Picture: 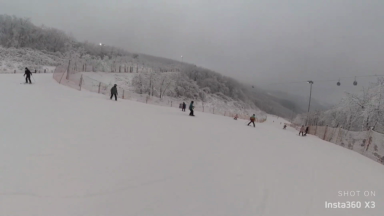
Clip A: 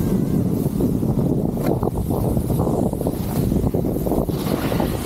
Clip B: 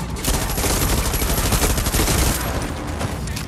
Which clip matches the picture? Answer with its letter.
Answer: A